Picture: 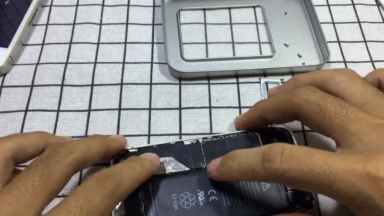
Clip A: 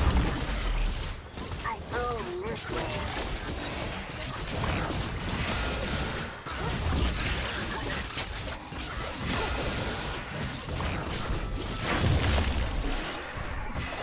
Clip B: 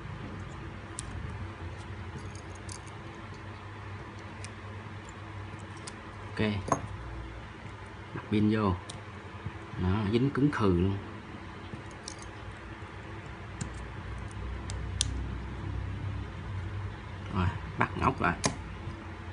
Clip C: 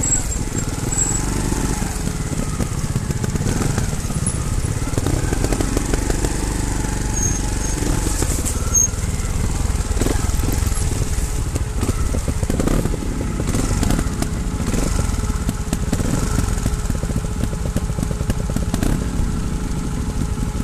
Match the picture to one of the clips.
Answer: B